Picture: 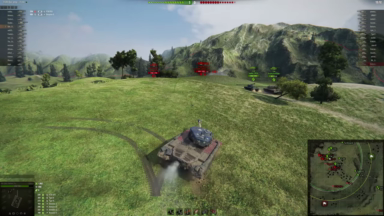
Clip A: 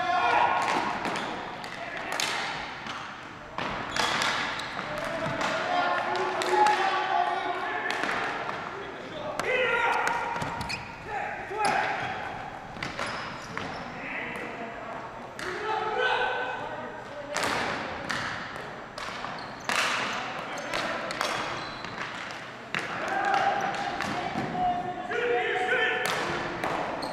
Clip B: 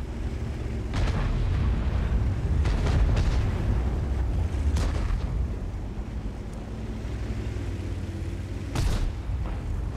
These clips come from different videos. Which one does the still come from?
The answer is B